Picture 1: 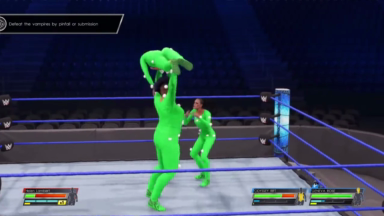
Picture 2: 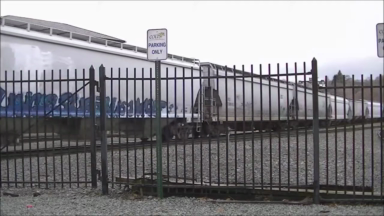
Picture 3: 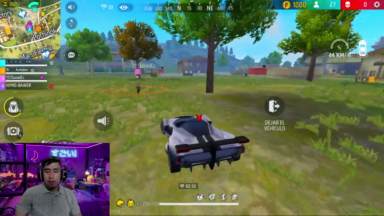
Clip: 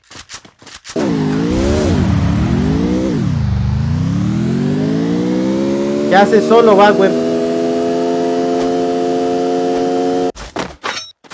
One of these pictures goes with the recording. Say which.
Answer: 3